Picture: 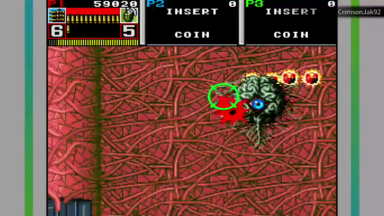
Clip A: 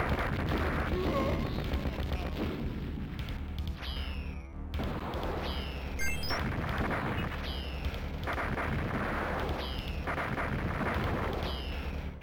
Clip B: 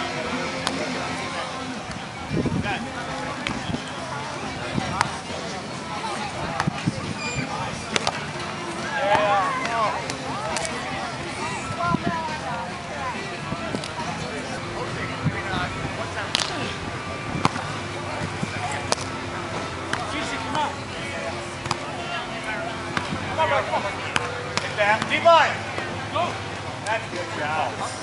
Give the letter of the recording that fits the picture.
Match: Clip A